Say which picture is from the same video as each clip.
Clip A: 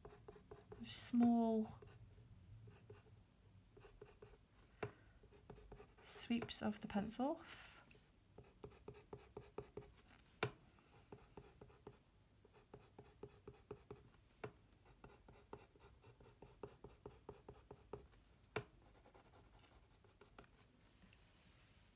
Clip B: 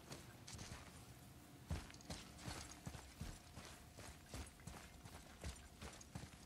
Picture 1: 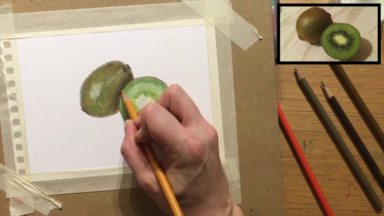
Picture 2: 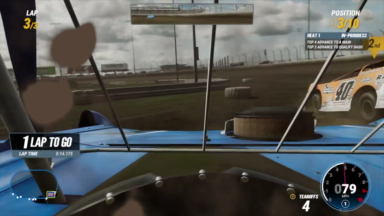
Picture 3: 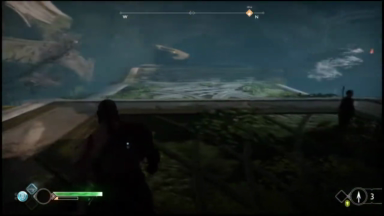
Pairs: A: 1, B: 3